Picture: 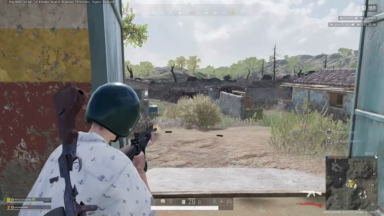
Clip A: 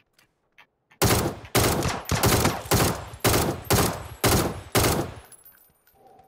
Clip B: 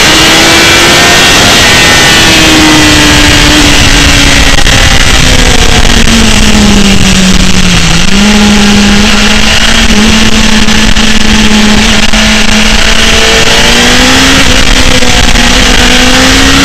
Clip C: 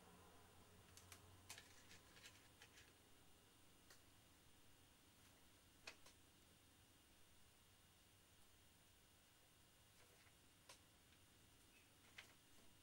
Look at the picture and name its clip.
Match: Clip A